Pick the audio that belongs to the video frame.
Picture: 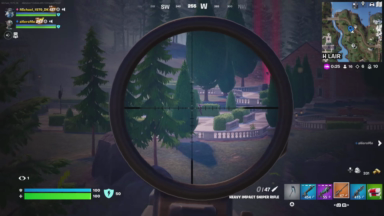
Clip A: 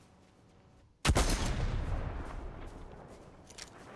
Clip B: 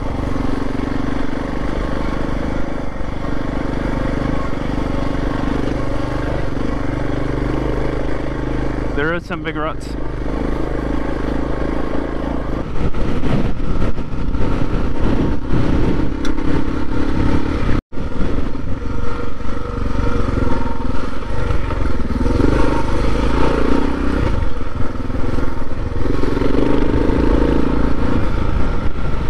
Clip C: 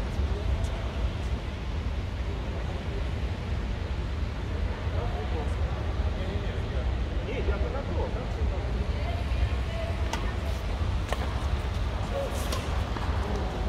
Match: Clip A